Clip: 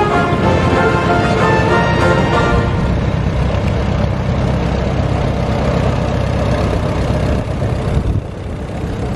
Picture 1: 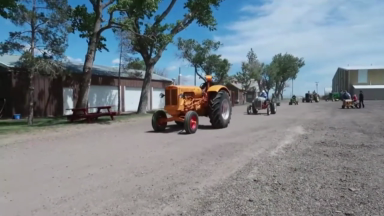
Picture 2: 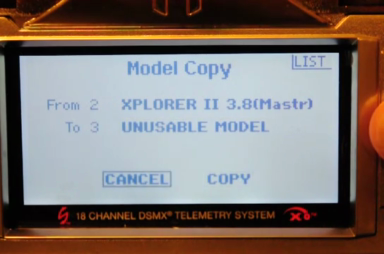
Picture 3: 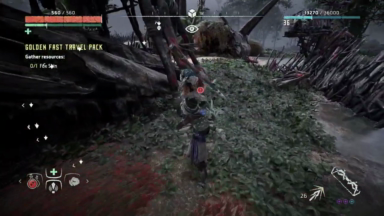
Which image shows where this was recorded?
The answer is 1